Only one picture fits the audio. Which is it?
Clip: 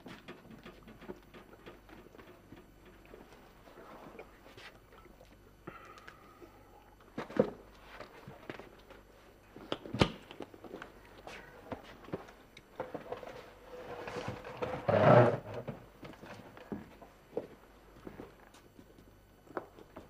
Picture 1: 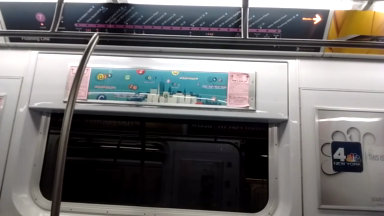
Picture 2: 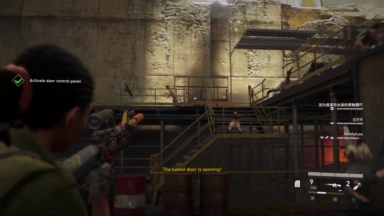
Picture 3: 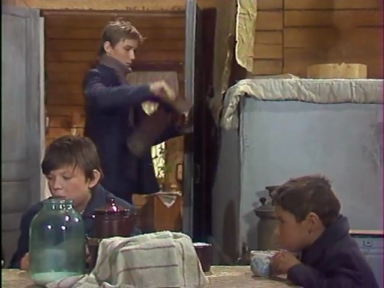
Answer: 3